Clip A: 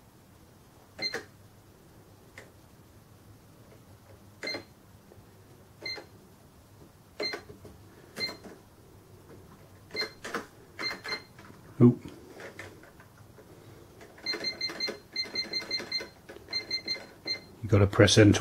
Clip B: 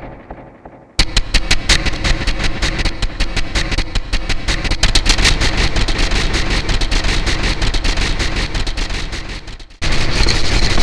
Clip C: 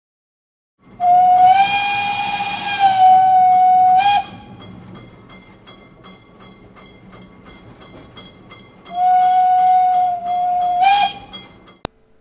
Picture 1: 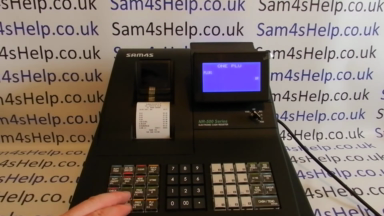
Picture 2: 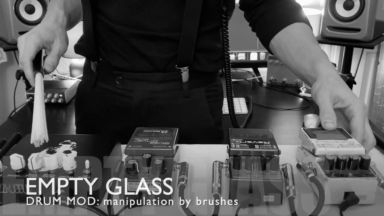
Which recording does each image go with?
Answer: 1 A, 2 B